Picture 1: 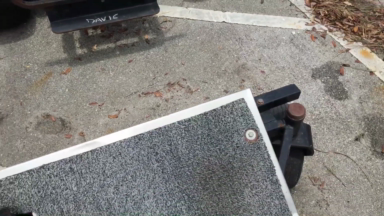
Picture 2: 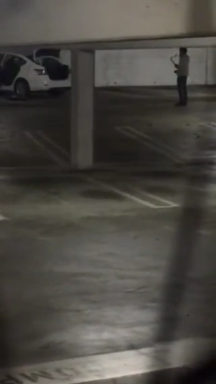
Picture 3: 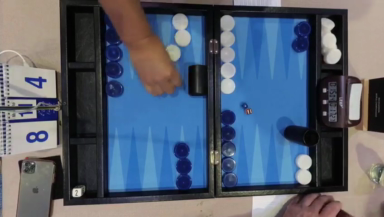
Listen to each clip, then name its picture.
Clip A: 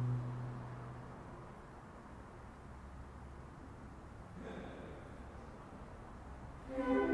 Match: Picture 2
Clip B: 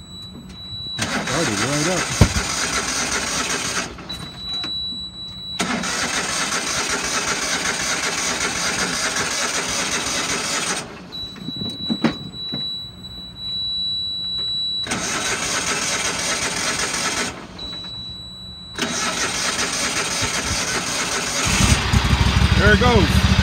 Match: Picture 1